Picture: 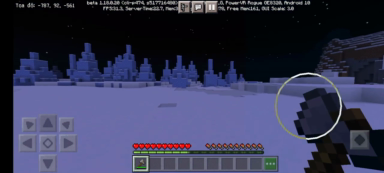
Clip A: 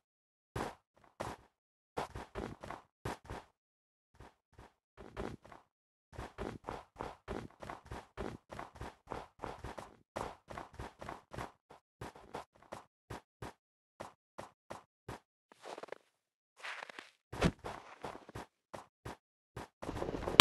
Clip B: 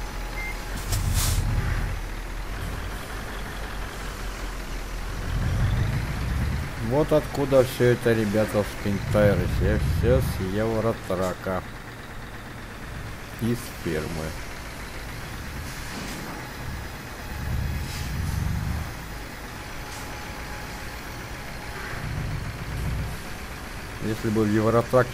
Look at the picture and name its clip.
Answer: A